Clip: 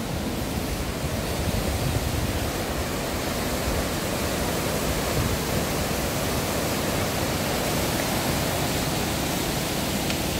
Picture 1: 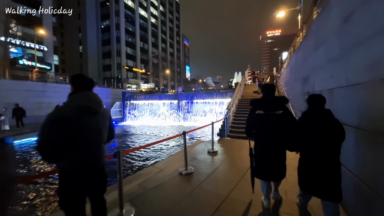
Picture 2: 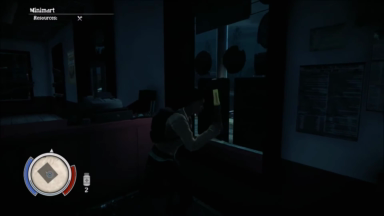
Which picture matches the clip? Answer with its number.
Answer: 1